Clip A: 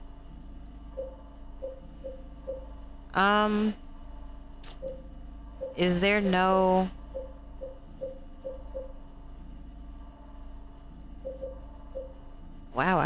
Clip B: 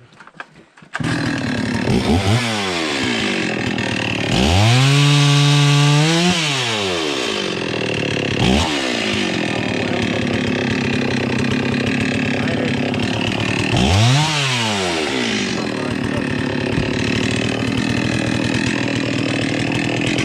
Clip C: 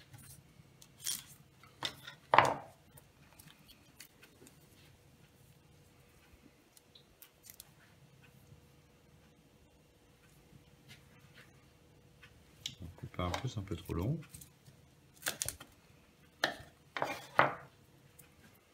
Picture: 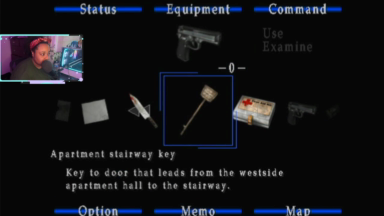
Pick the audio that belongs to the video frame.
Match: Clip A